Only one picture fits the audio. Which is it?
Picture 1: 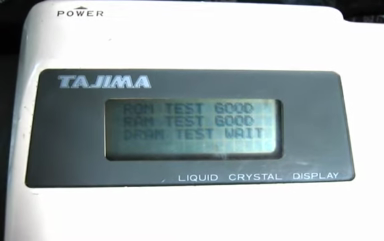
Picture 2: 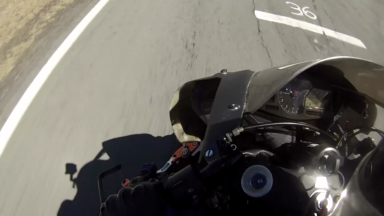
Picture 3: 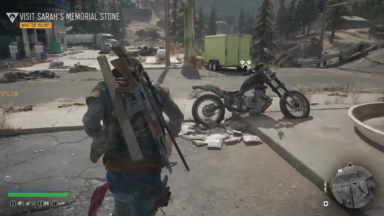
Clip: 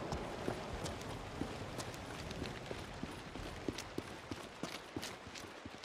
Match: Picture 3